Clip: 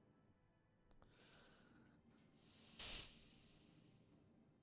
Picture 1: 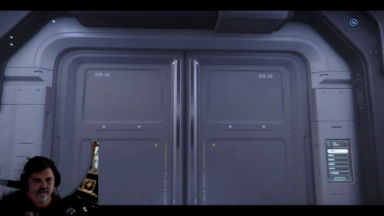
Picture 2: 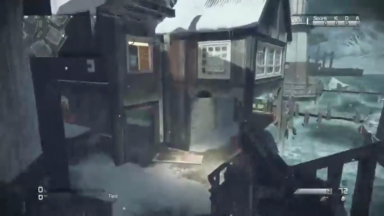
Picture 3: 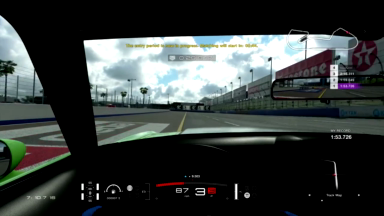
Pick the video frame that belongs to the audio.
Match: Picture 1